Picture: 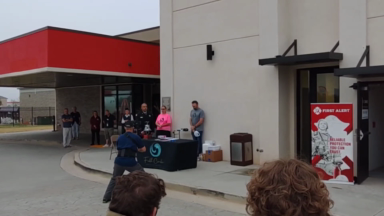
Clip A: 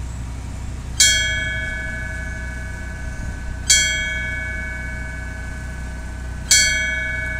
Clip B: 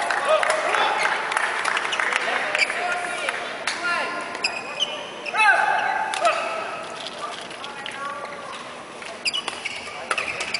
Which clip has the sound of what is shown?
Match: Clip A